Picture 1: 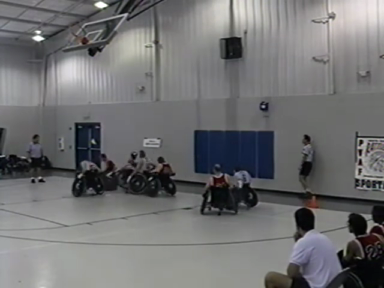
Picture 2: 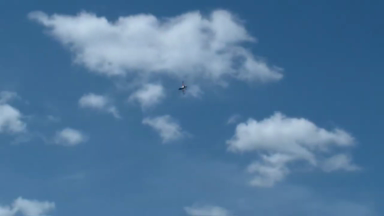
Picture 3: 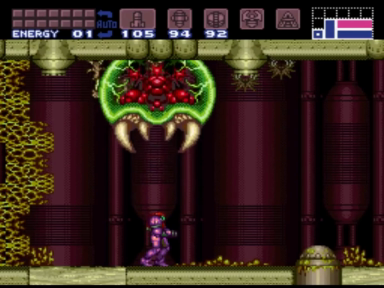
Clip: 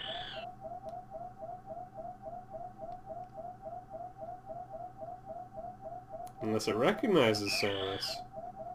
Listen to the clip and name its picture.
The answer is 3